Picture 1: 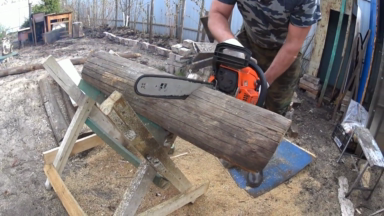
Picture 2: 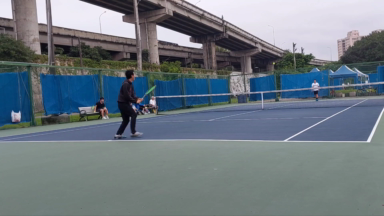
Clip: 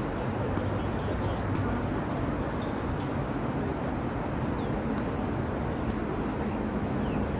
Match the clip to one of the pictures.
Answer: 2